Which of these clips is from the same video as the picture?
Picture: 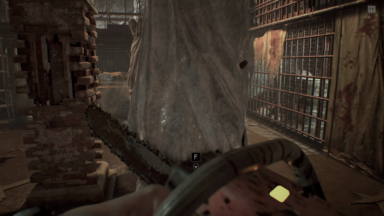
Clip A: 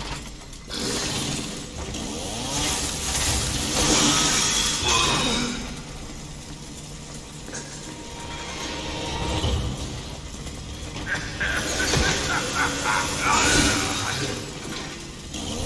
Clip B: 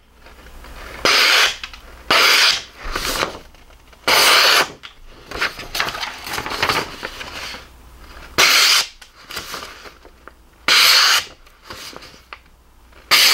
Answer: A